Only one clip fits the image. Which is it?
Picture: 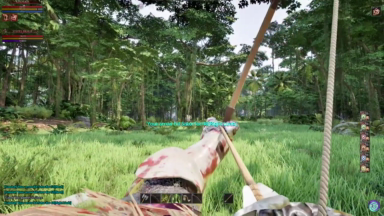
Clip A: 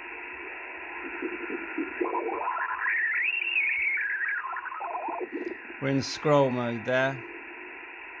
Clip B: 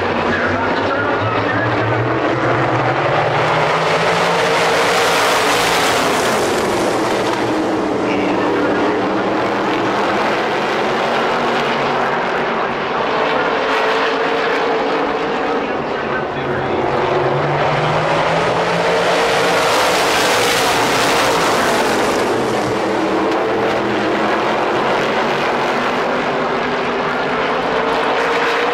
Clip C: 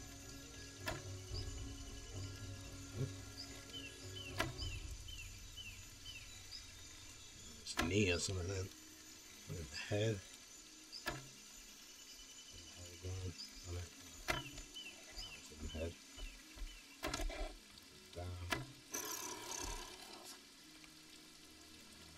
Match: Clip C